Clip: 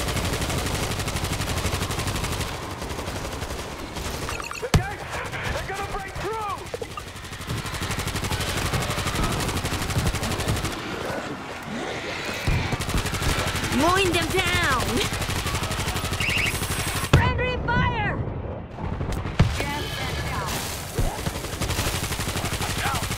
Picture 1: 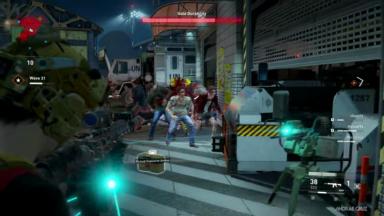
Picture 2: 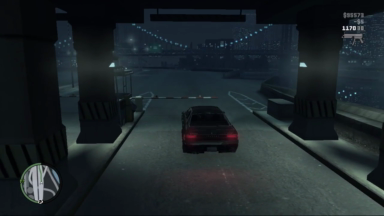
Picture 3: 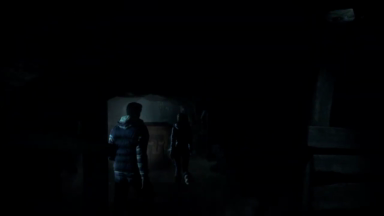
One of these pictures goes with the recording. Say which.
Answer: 1